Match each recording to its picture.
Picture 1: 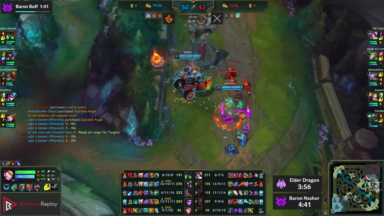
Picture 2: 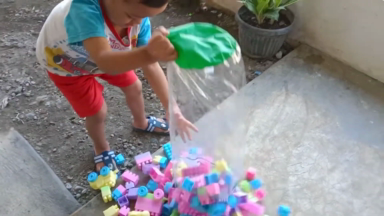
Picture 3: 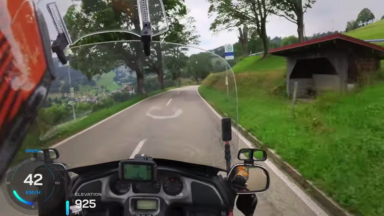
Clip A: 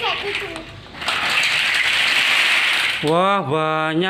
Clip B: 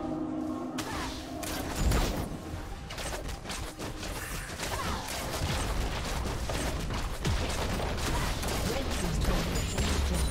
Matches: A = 2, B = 1